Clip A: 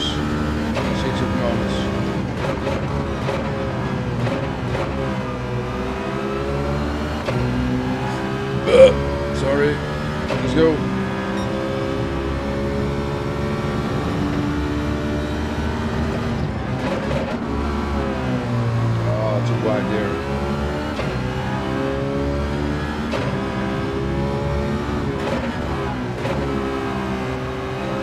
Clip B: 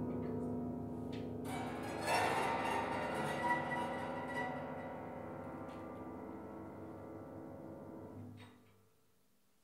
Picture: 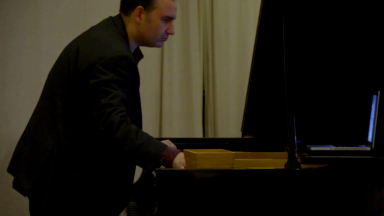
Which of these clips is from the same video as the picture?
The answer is B